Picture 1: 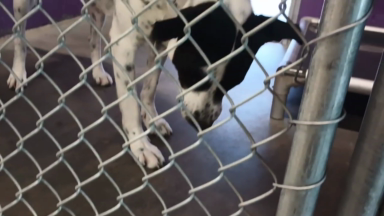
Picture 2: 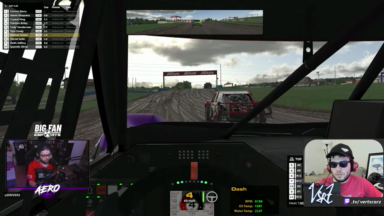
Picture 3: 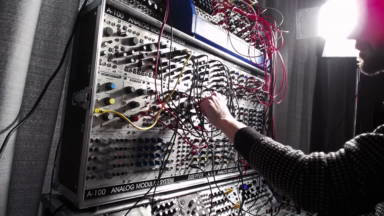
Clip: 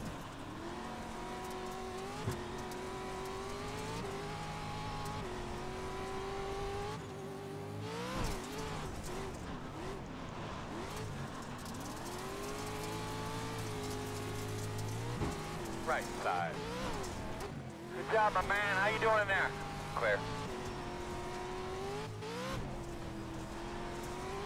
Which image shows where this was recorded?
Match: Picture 2